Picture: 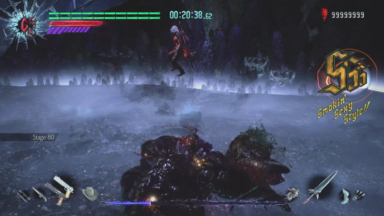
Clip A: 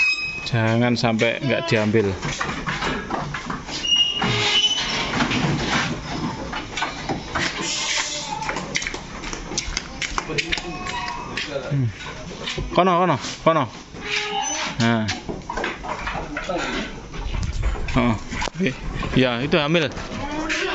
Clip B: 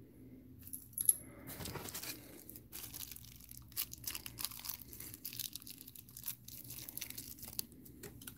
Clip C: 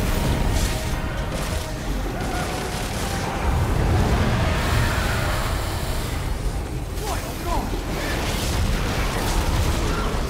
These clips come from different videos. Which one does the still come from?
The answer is C